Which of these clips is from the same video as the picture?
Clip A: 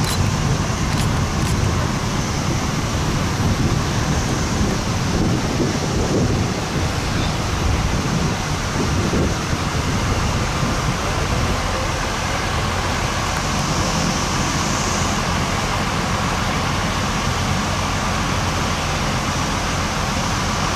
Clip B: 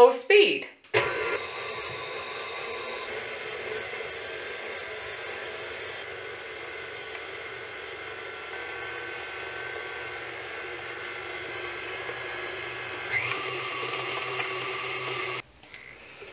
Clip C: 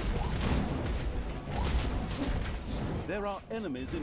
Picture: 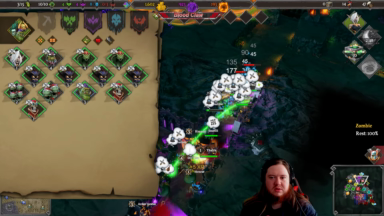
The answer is C